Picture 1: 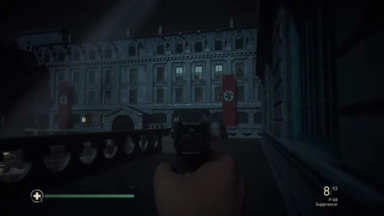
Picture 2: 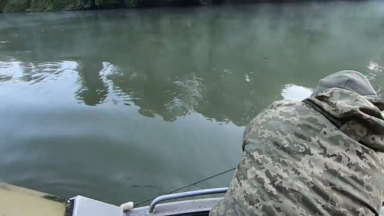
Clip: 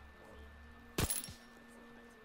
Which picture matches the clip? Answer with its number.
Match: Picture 1